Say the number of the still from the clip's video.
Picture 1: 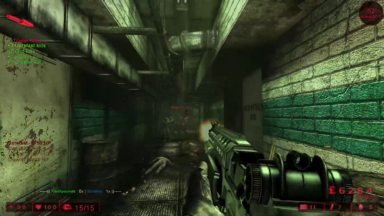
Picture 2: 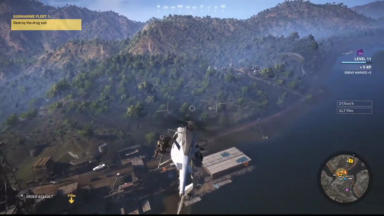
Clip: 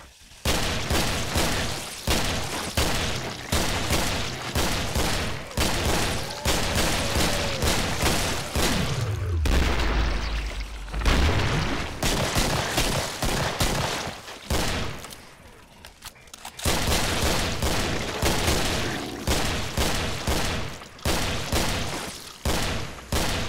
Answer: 1